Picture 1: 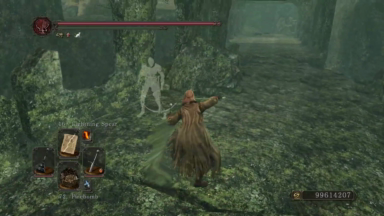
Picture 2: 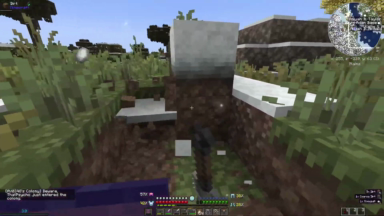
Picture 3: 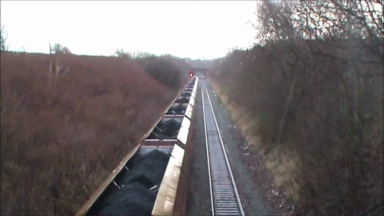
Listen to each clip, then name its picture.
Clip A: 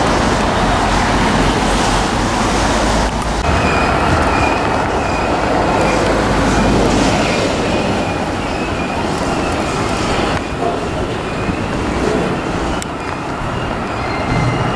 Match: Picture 3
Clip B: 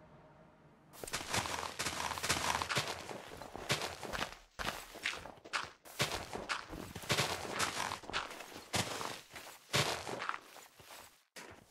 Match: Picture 2